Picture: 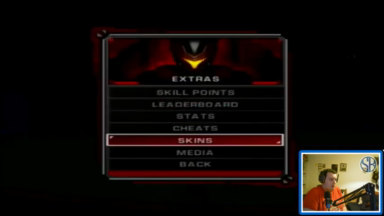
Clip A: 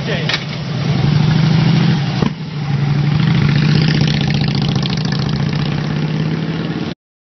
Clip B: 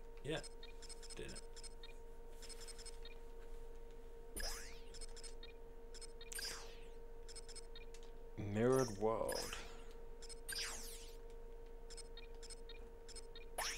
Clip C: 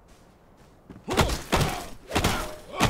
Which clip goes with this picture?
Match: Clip B